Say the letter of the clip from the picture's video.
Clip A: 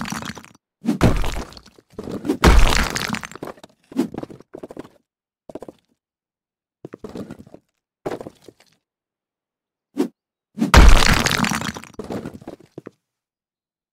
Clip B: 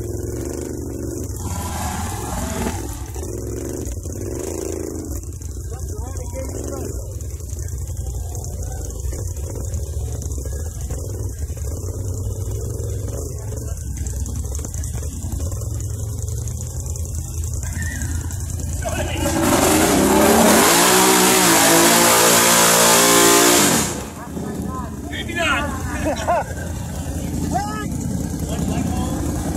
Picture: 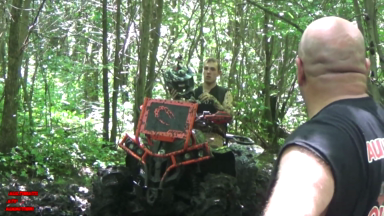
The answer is B